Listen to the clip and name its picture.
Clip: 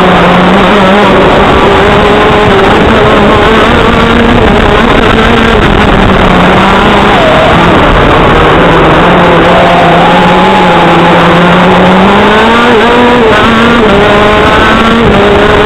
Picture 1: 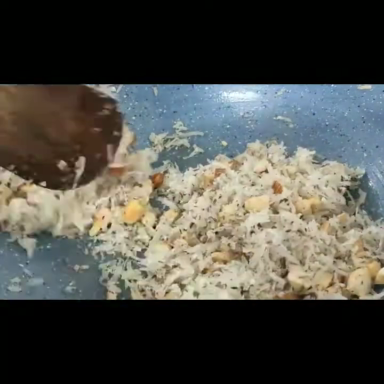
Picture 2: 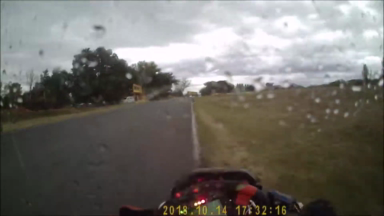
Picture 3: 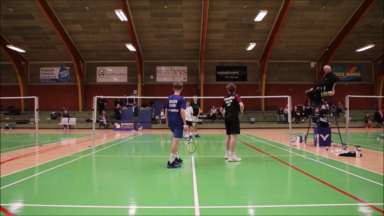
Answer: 2